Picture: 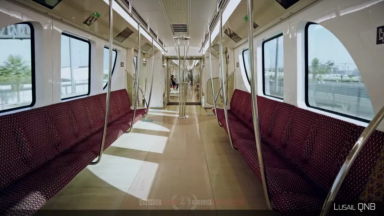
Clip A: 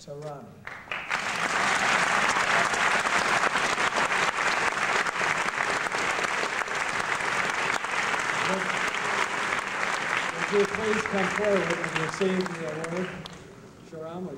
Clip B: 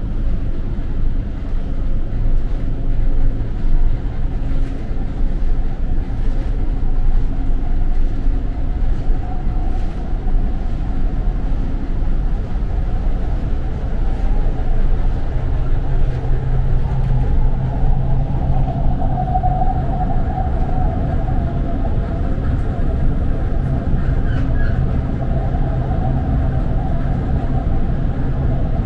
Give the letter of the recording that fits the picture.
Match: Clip B